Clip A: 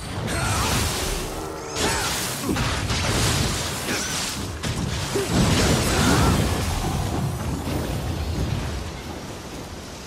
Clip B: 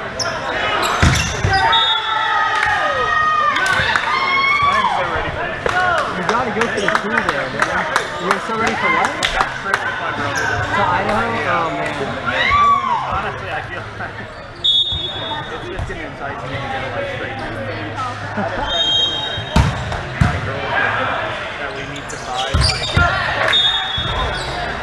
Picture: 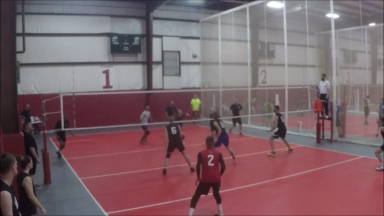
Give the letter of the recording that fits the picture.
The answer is B